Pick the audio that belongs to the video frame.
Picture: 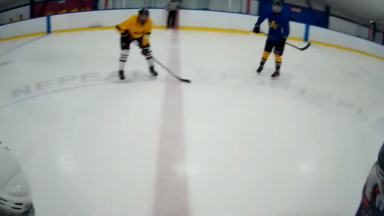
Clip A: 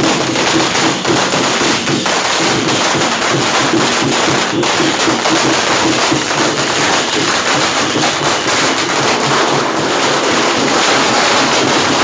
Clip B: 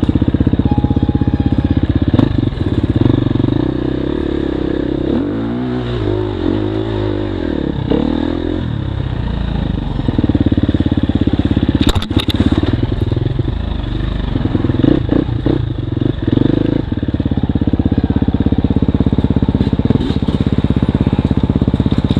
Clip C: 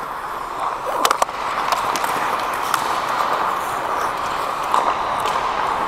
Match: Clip C